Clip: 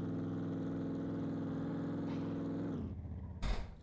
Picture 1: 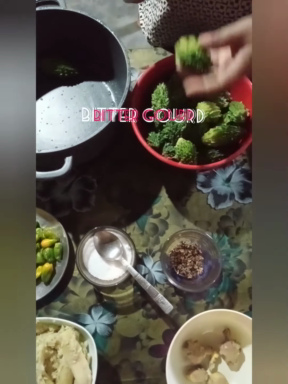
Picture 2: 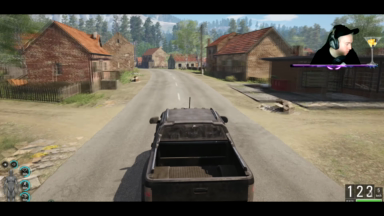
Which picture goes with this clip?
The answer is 2